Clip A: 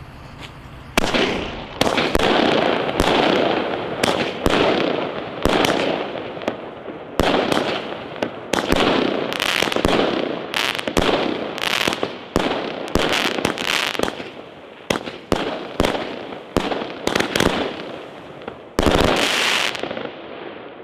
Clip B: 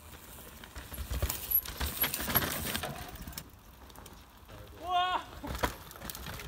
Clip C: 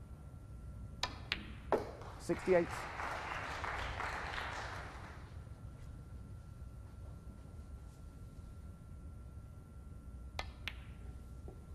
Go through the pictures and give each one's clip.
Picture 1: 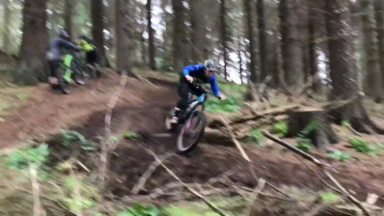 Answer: B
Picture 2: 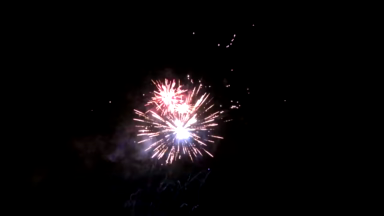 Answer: A